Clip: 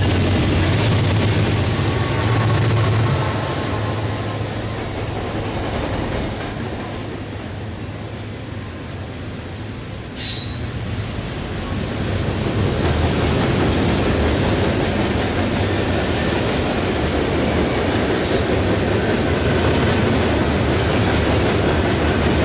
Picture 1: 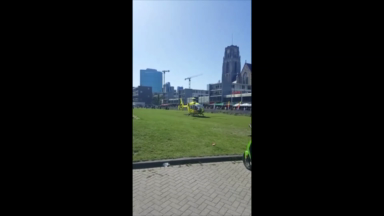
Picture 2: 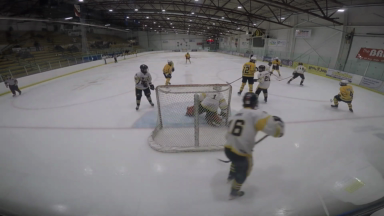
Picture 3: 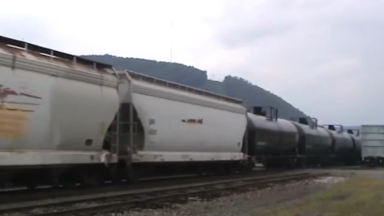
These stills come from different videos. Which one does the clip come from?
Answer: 3